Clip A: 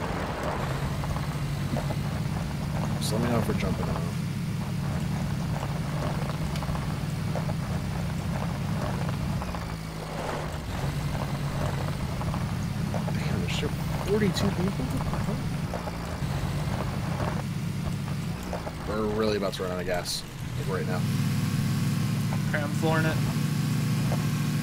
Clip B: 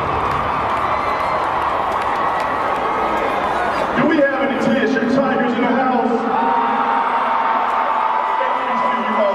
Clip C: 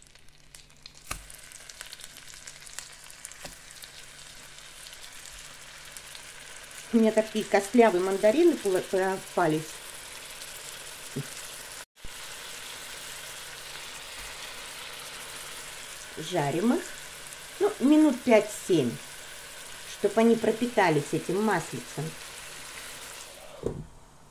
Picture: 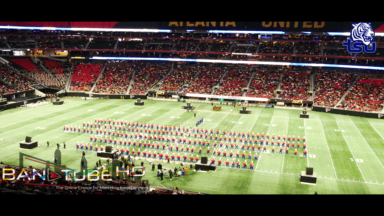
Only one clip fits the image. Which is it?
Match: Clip B